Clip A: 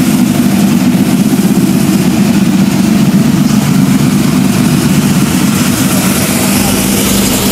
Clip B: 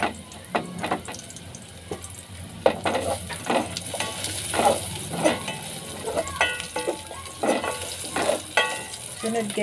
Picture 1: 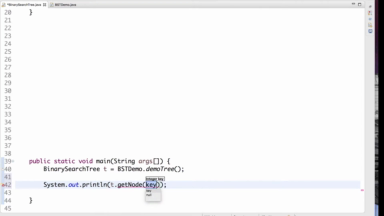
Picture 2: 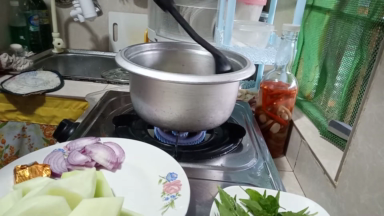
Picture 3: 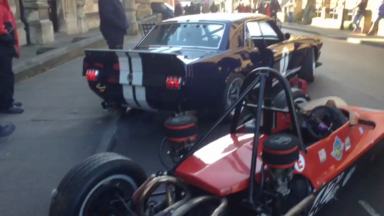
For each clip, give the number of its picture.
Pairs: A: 3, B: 2